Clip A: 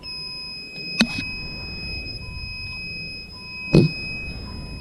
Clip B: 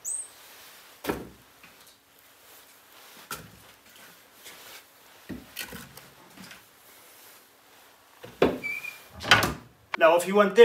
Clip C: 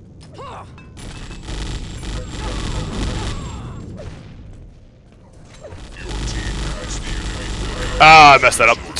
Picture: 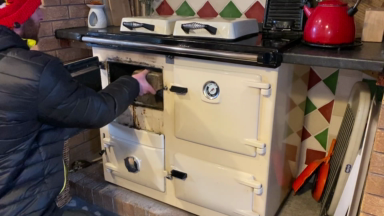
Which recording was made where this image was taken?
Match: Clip B